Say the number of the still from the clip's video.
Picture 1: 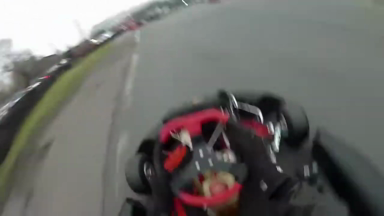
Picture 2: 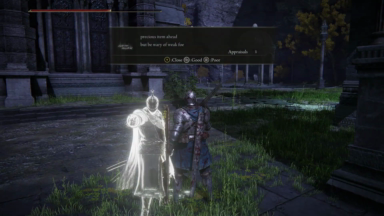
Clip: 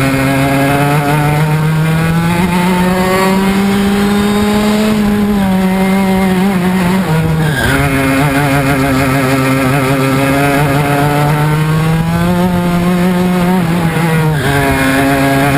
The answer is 1